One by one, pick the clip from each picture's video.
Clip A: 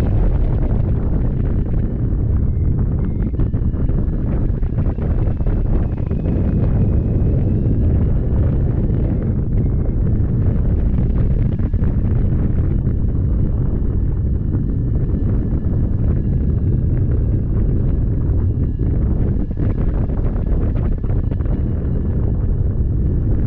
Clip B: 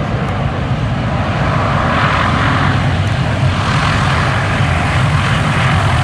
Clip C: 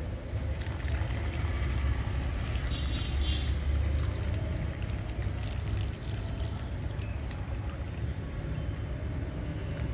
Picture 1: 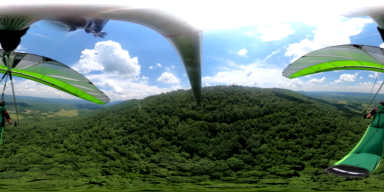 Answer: A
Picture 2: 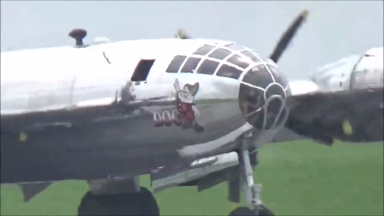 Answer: B